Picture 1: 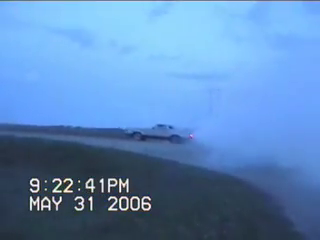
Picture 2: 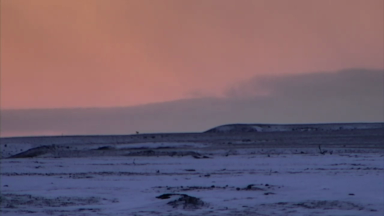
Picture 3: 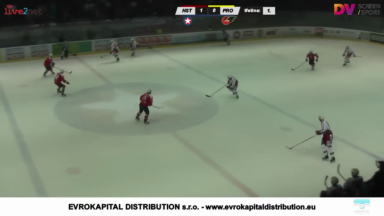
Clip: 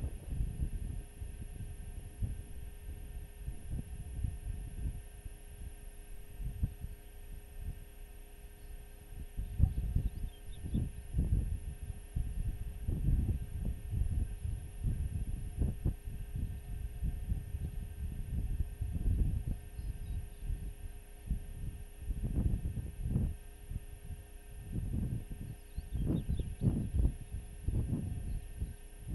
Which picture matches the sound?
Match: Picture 2